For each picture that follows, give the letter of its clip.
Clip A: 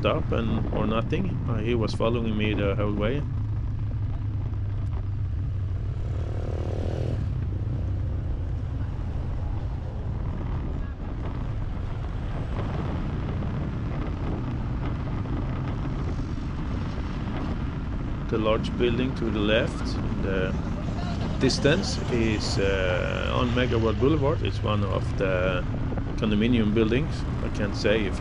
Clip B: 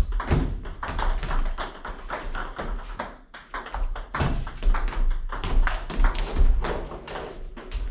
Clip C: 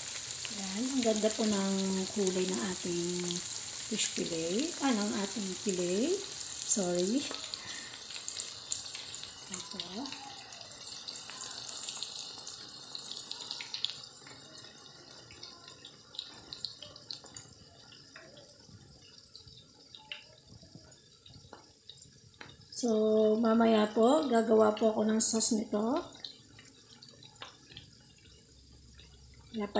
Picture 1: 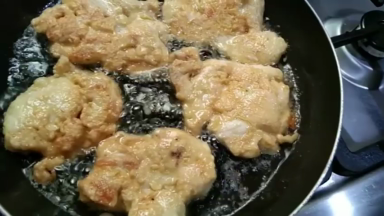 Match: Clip C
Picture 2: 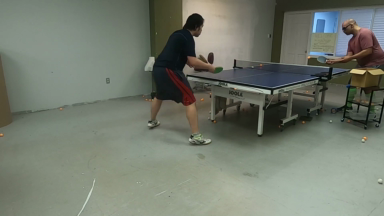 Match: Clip B